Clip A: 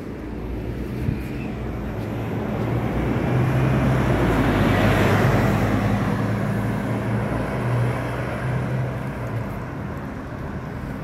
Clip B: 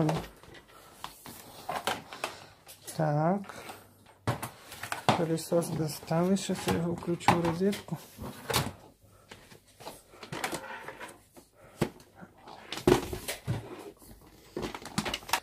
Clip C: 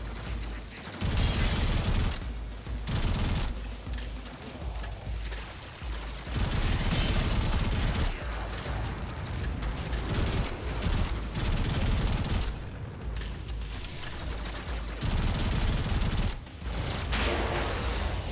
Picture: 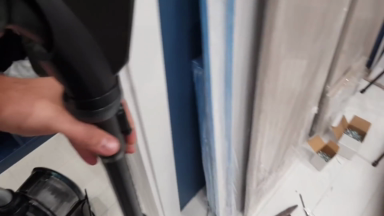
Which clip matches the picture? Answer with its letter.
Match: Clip B